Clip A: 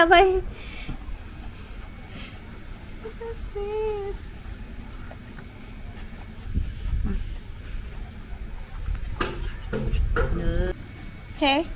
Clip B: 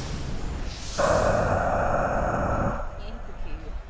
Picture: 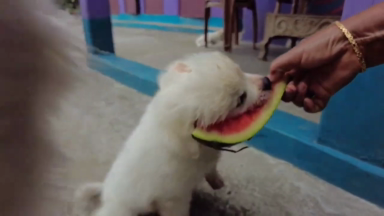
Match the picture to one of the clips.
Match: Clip A